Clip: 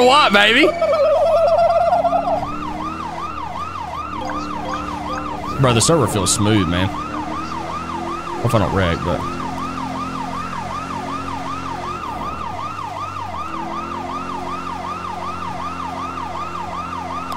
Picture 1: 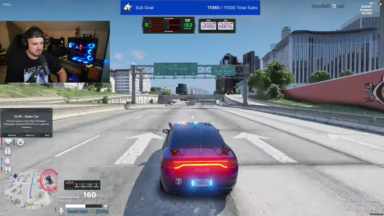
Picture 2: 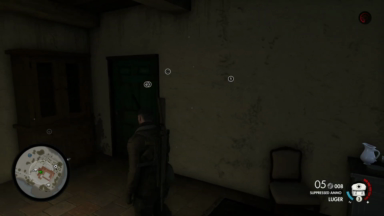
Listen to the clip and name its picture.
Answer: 1